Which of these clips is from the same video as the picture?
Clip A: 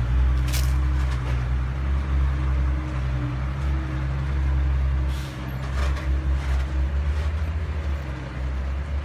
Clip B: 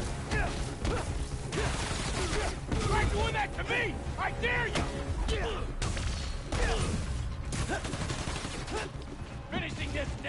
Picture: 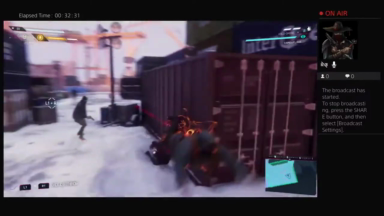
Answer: B